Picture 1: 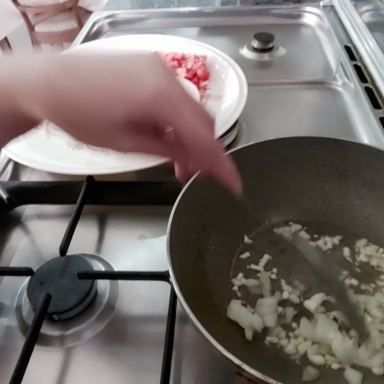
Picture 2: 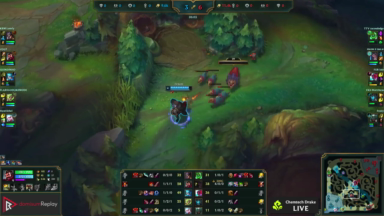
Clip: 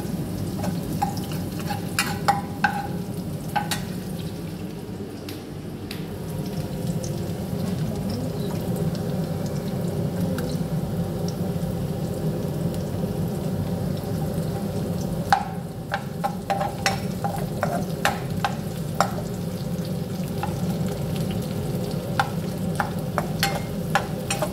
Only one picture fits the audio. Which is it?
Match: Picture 1